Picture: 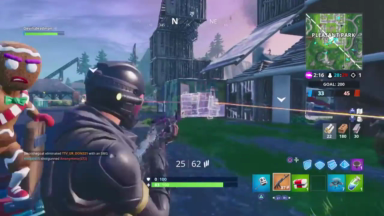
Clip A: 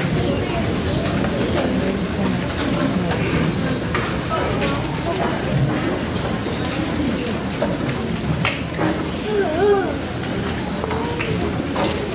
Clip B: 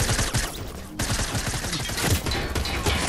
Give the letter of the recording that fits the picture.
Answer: B